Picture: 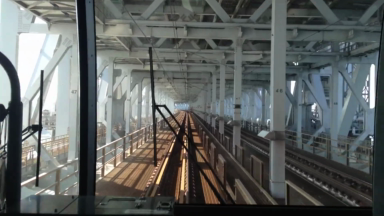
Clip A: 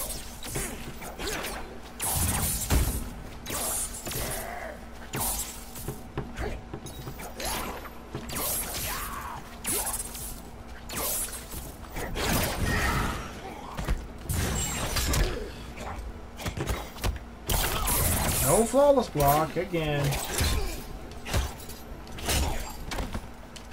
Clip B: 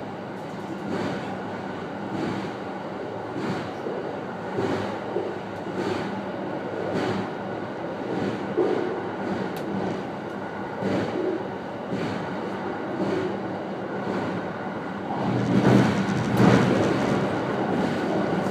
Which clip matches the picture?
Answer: B